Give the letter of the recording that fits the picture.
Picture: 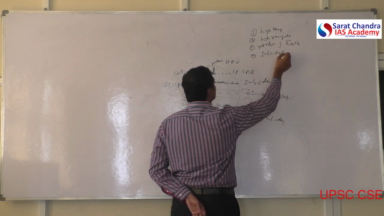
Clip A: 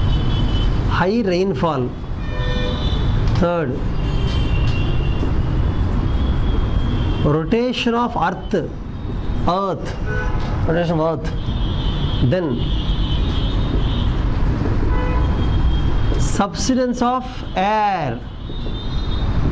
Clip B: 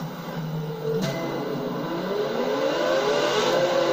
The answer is A